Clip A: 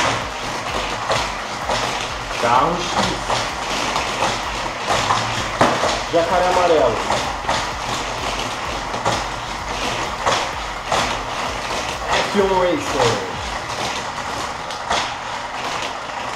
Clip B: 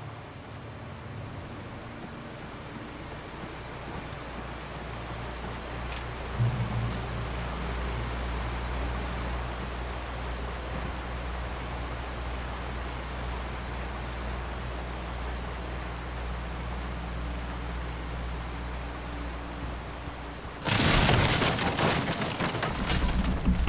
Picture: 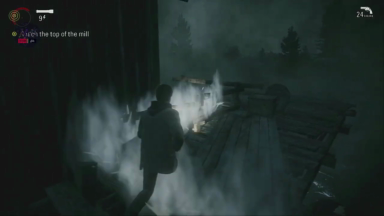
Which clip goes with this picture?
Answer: B